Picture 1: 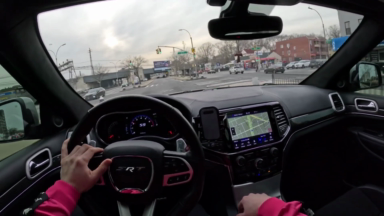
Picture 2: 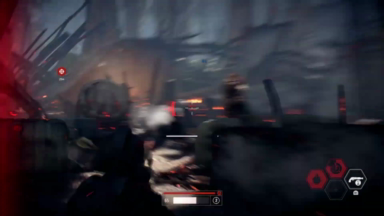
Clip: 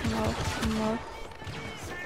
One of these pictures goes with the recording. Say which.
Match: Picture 2